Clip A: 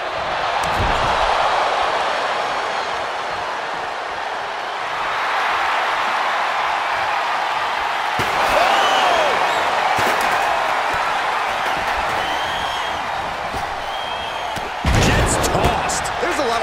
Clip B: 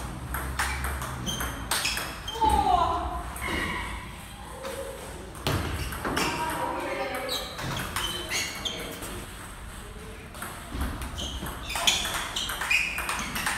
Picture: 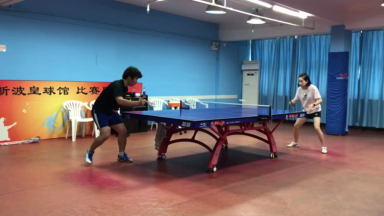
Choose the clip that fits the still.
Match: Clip B